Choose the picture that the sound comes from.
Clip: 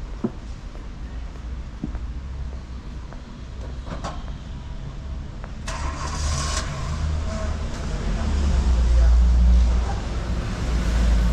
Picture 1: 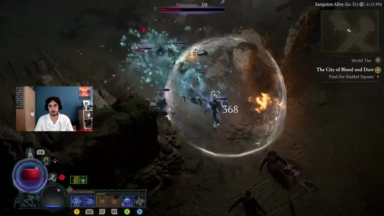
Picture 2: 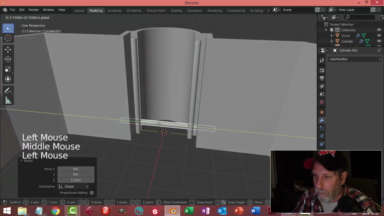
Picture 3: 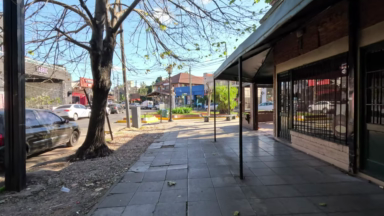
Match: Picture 3